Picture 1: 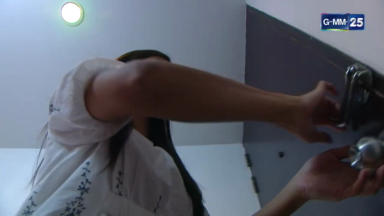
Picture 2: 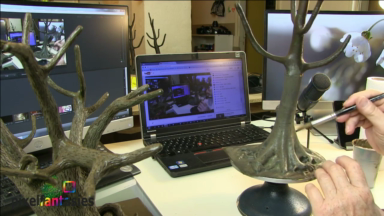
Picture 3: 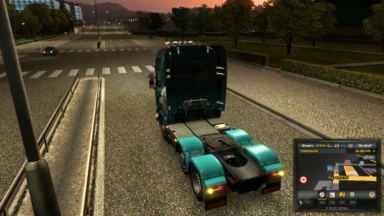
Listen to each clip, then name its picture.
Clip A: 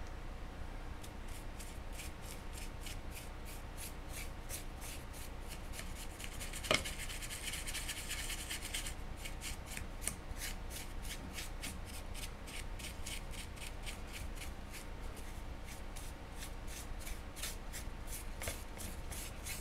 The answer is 2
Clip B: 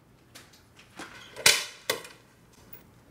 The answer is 1